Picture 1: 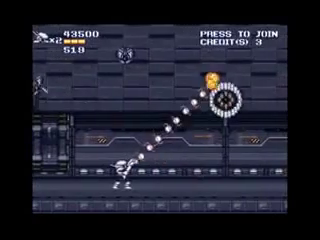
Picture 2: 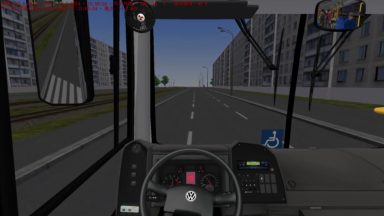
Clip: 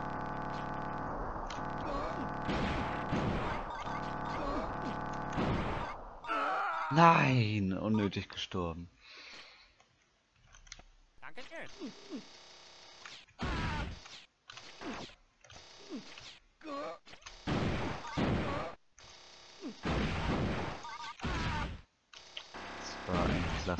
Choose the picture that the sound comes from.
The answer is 1